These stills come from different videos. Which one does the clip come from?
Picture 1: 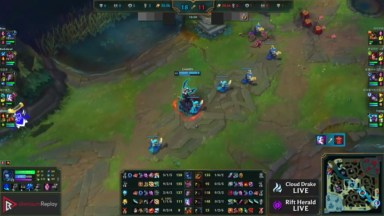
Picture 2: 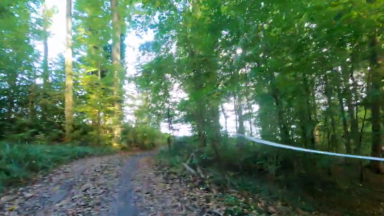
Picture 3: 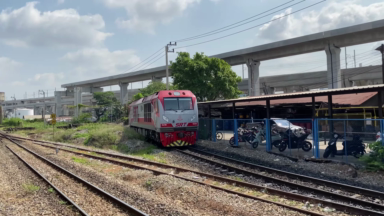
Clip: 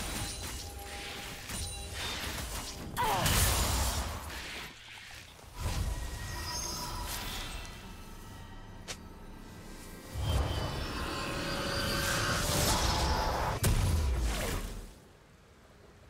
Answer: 1